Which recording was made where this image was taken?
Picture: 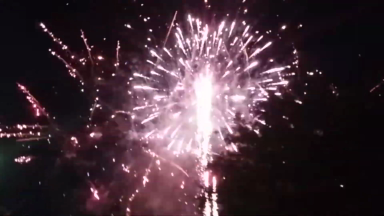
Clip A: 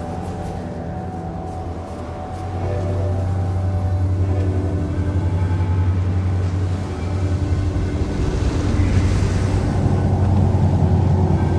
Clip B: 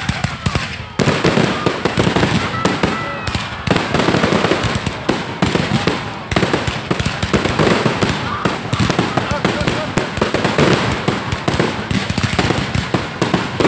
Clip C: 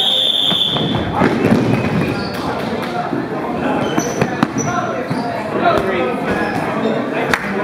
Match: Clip B